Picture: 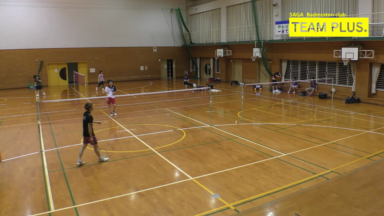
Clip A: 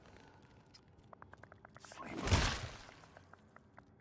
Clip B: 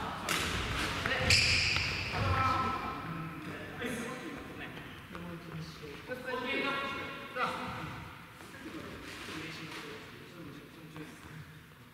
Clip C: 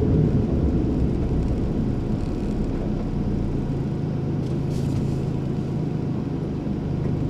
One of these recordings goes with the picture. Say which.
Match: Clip B